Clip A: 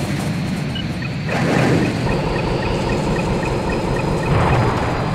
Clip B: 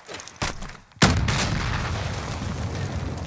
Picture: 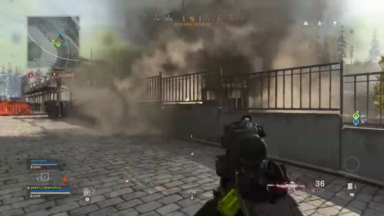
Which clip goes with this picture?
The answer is B